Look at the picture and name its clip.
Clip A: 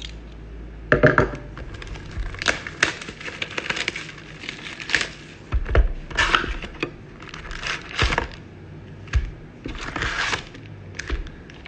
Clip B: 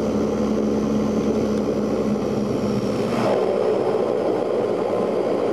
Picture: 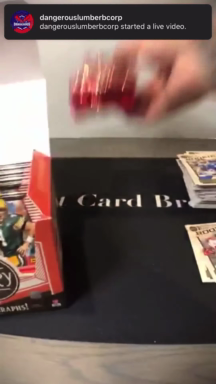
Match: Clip A